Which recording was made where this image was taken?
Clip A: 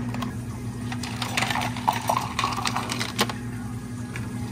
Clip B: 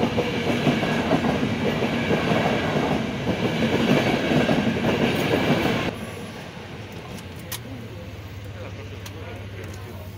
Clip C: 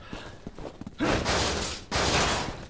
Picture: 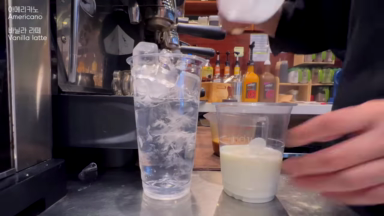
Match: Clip A